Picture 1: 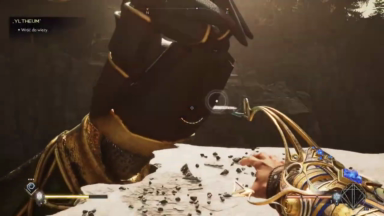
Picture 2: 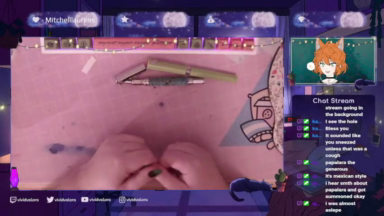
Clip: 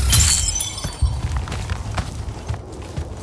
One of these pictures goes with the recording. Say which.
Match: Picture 1